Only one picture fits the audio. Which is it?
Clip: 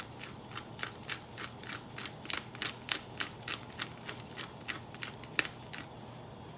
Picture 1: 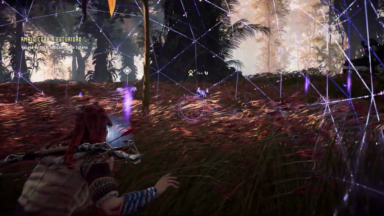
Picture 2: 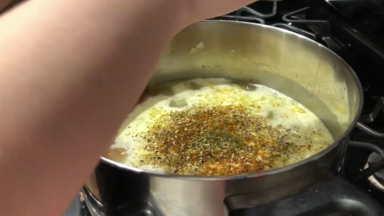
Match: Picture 2